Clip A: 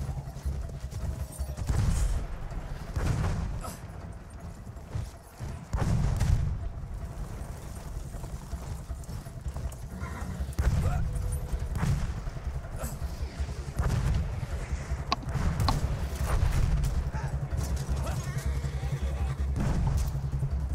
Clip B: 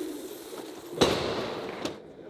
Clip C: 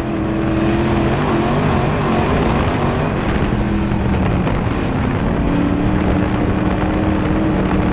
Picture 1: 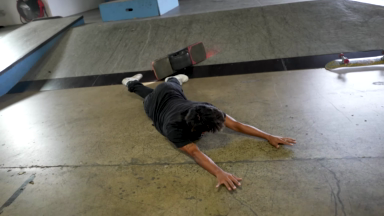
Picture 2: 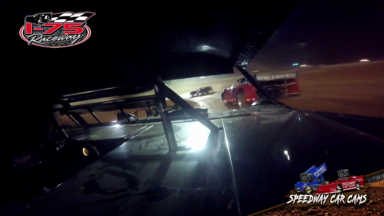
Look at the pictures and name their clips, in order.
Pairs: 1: B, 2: C